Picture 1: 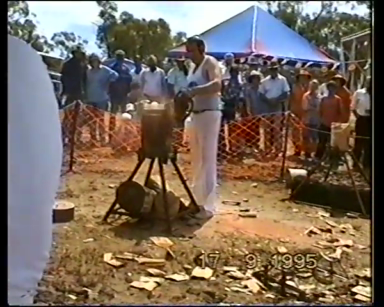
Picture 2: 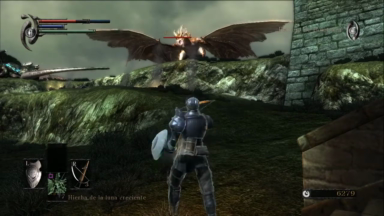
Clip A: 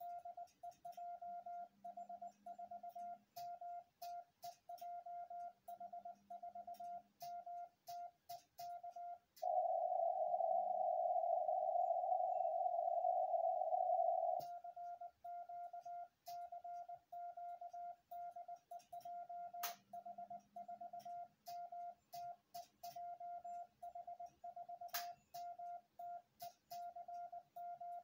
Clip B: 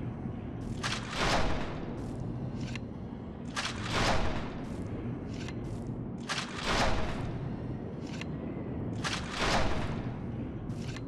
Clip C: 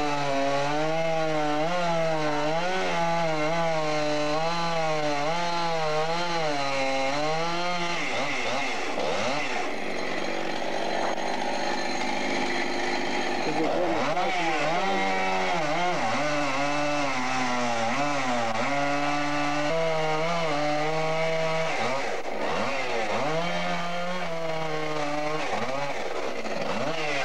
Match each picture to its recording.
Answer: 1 C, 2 B